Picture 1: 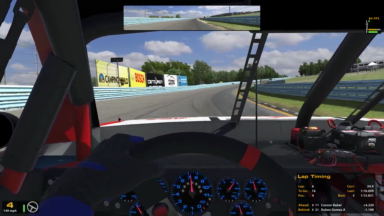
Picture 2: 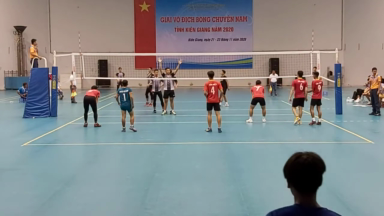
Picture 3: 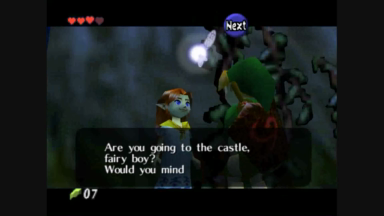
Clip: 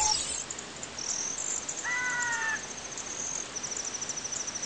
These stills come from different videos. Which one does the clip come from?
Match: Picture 3